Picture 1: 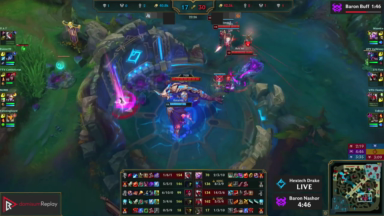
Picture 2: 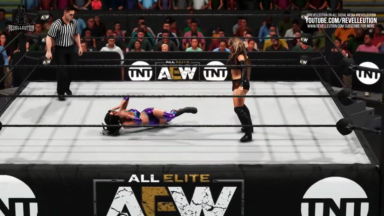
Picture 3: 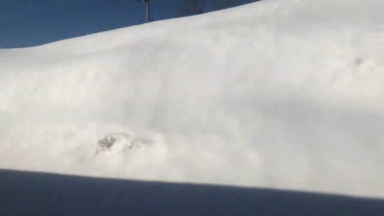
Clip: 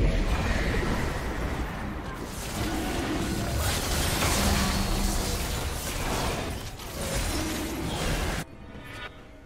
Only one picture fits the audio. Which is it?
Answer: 1